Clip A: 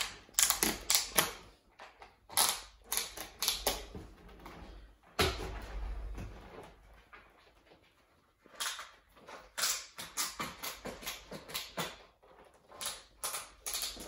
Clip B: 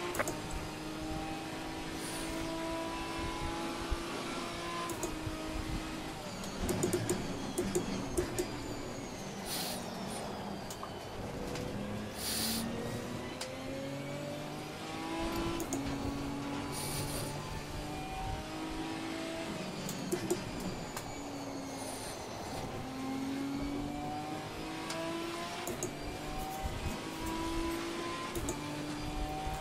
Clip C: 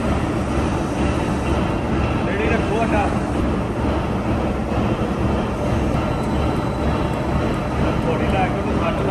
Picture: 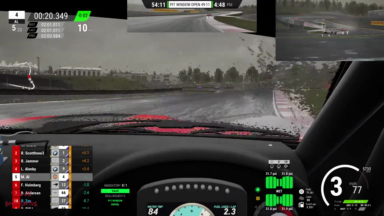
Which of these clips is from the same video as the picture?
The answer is B